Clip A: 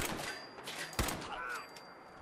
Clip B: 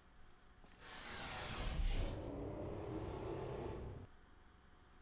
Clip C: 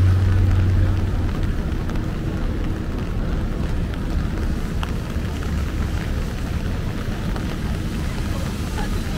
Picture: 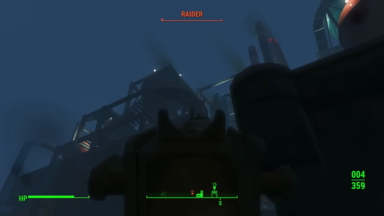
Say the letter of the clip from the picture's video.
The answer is A